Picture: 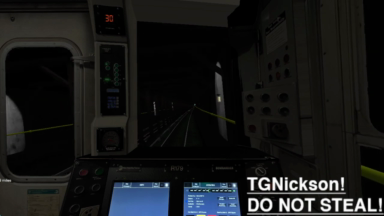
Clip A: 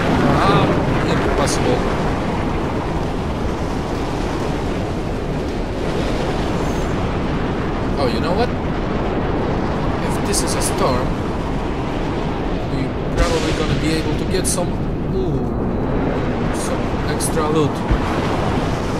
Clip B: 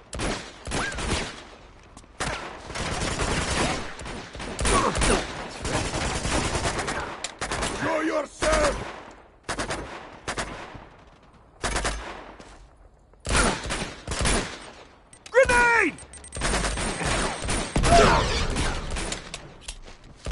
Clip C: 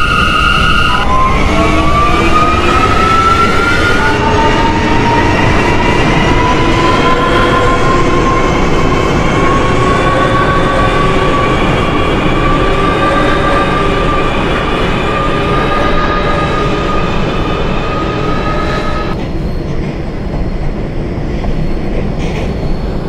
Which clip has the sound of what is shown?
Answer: C